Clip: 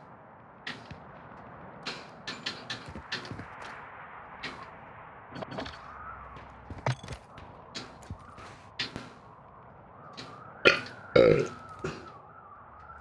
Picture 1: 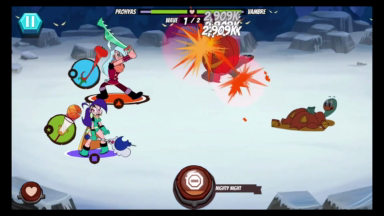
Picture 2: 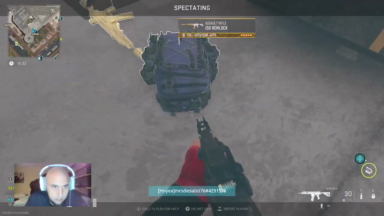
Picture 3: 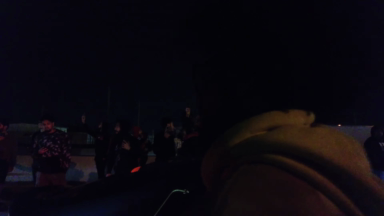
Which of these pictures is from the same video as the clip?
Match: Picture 2